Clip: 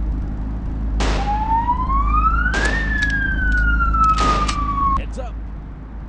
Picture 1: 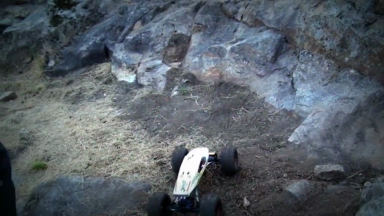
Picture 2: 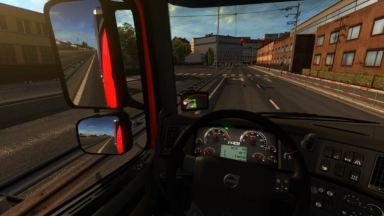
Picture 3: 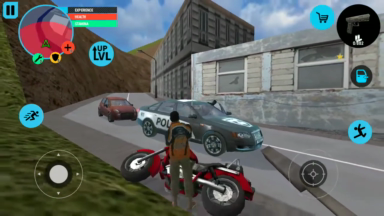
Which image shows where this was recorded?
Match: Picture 3